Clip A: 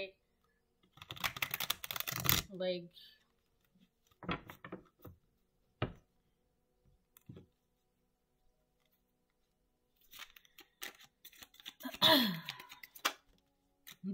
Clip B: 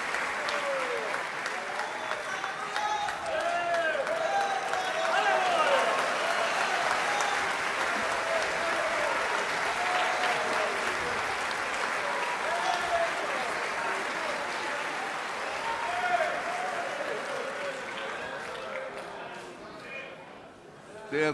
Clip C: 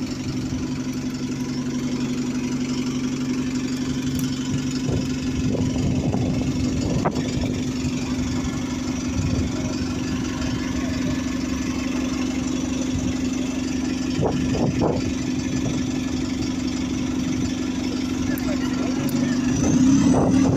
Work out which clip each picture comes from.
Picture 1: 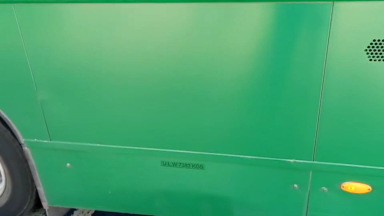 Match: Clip C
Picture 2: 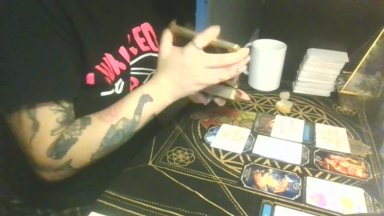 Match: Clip A